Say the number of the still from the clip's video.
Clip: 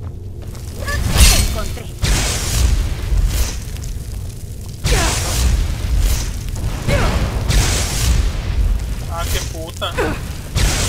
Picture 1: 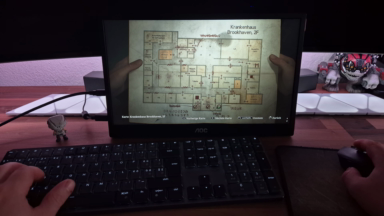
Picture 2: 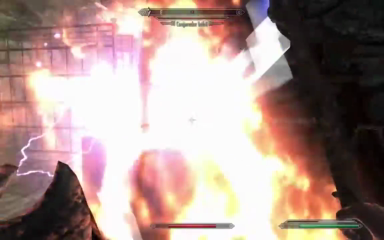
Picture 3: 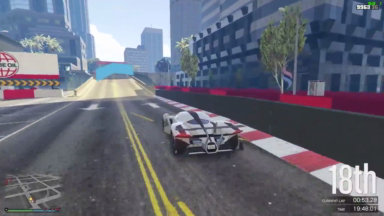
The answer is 2